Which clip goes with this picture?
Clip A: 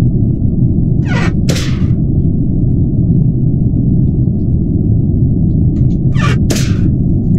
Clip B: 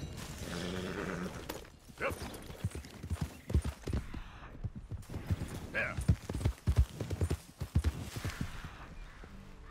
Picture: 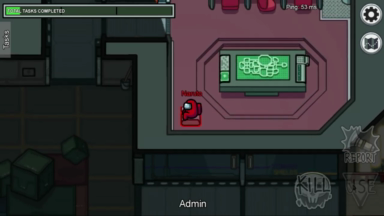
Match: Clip A